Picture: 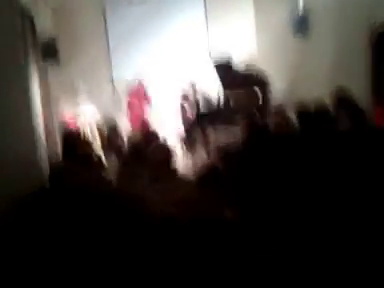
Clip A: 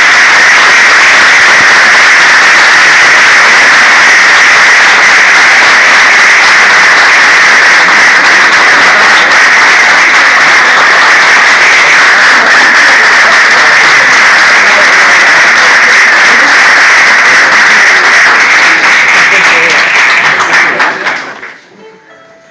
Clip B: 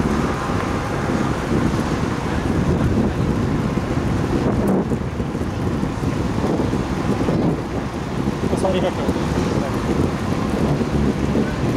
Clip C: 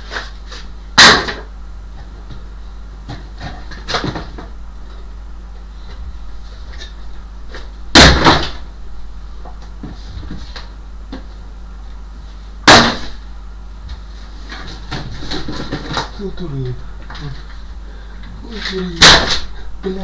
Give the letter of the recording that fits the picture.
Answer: A